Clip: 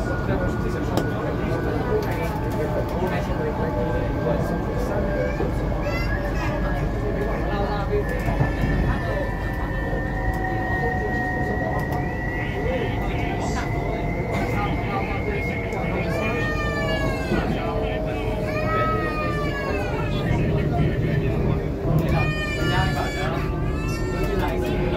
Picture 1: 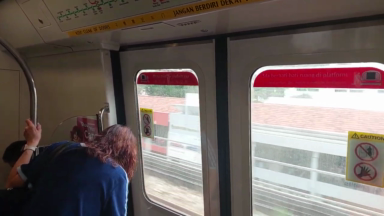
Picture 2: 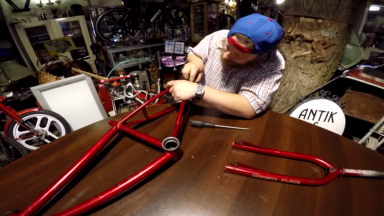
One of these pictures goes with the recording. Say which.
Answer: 1